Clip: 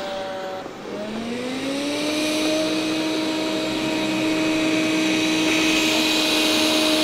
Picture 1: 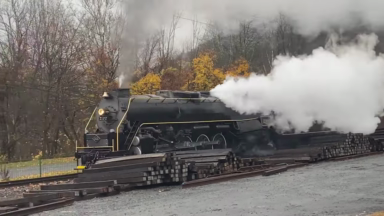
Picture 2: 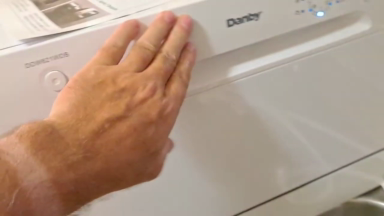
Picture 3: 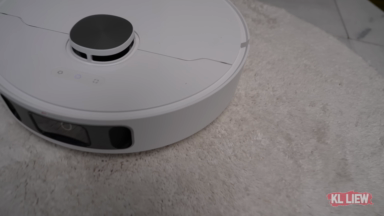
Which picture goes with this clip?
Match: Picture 3